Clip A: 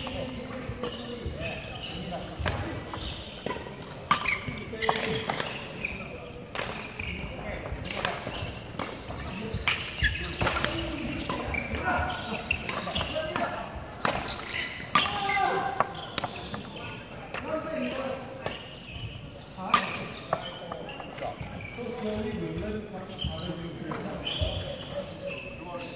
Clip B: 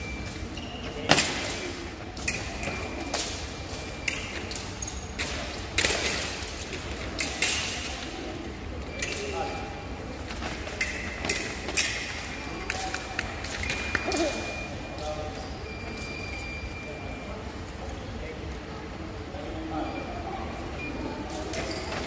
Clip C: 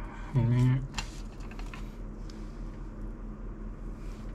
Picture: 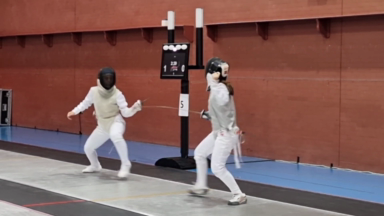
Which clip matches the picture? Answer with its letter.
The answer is B